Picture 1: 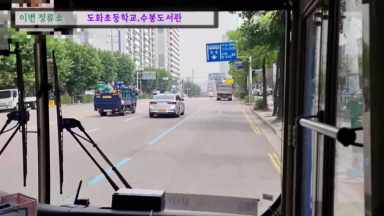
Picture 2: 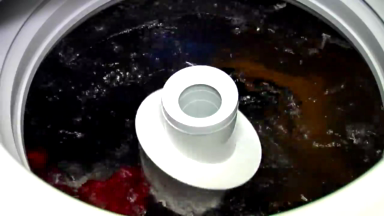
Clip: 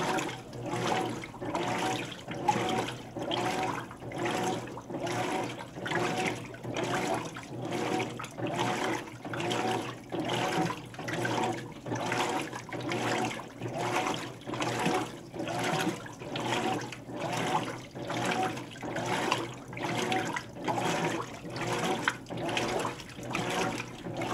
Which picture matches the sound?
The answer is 2